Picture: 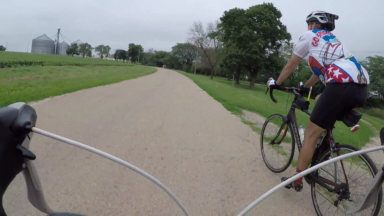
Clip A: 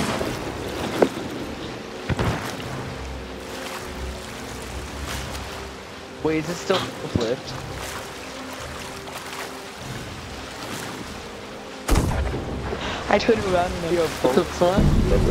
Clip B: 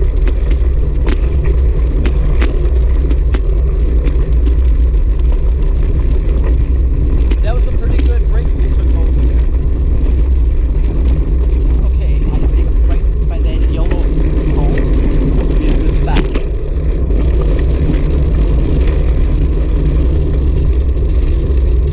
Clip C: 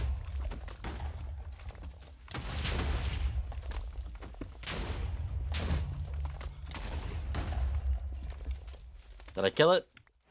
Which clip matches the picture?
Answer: B